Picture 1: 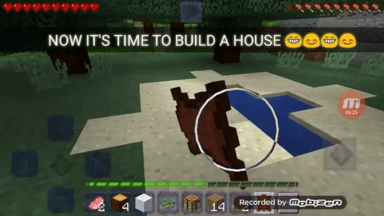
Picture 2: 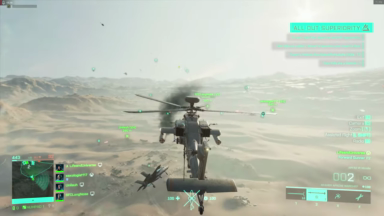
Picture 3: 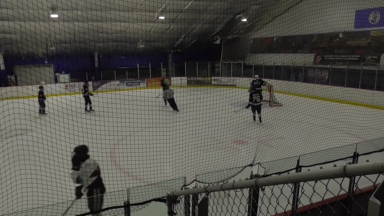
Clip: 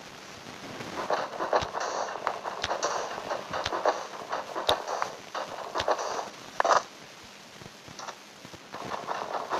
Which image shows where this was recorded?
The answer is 1